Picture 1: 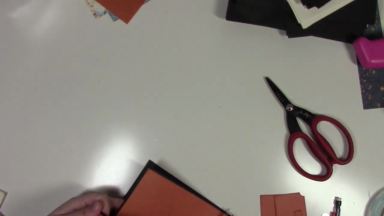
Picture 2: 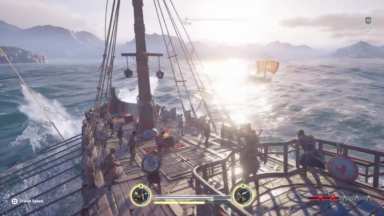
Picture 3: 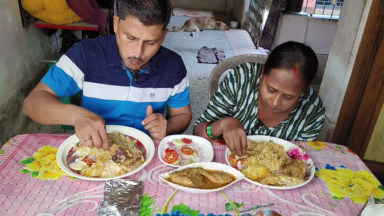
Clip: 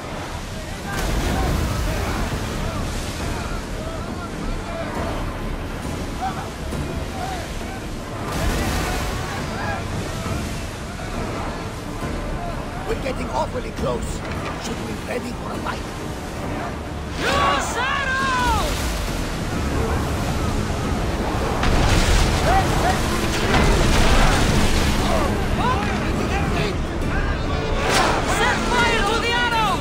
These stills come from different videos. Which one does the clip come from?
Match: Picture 2